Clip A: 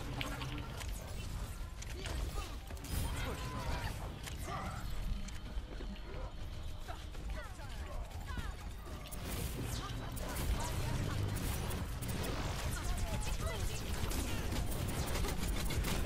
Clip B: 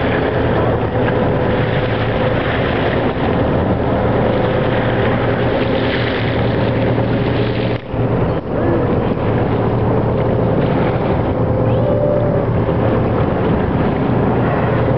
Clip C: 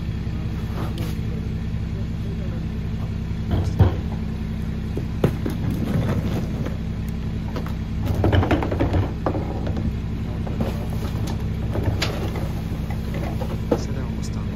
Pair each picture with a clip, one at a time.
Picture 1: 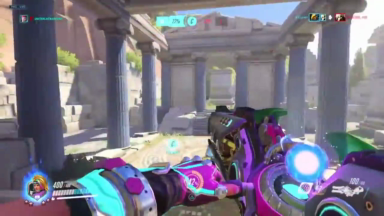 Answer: A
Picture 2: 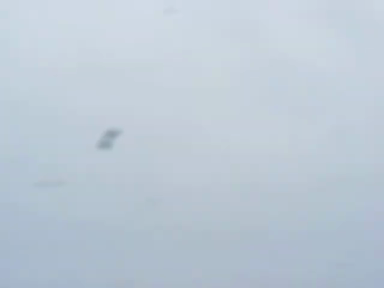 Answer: B